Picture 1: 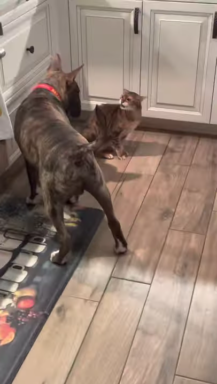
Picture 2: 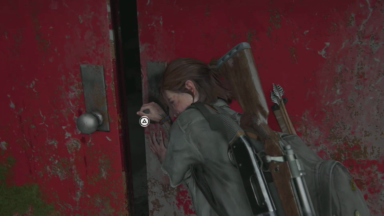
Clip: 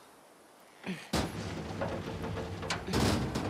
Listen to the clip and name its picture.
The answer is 2